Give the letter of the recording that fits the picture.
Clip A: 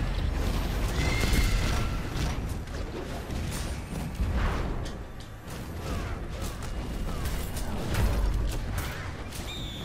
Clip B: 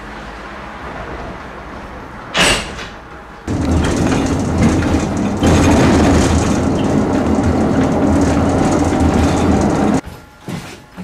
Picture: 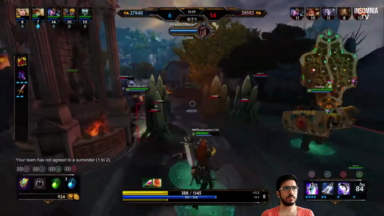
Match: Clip A